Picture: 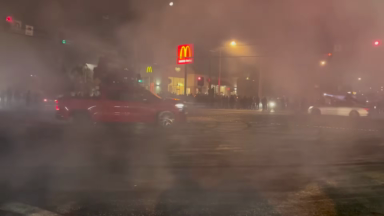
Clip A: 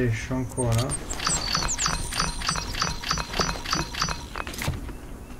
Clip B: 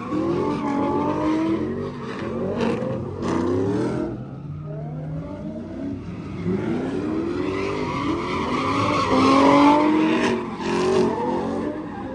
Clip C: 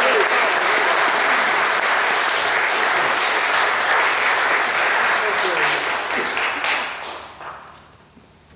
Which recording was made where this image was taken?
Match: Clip B